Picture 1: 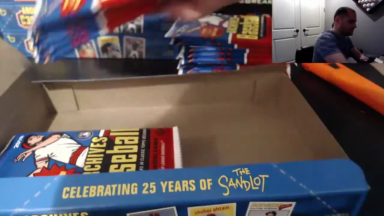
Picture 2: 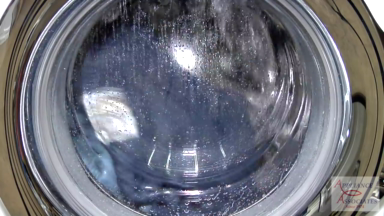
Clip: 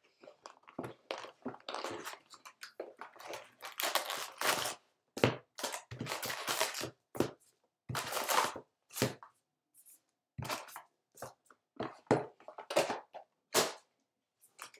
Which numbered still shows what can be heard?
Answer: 1